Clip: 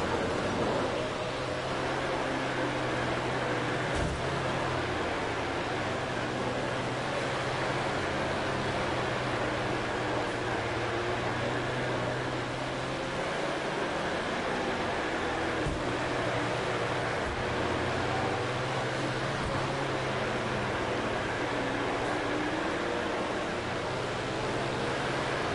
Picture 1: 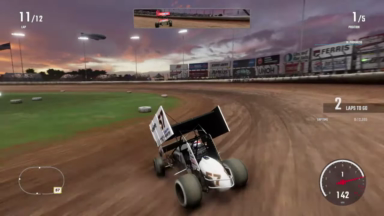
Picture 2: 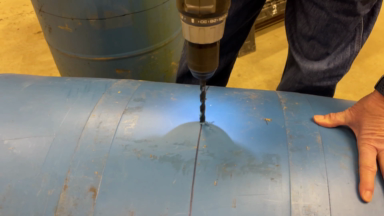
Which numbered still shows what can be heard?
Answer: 1